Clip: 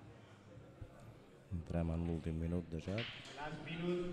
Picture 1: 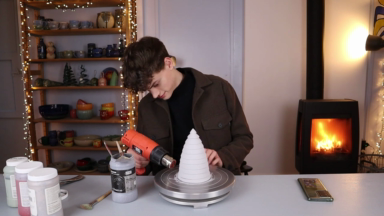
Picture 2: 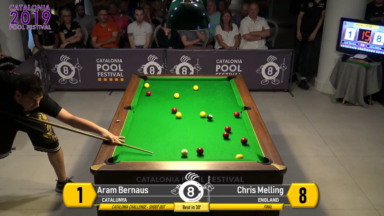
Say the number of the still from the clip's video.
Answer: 2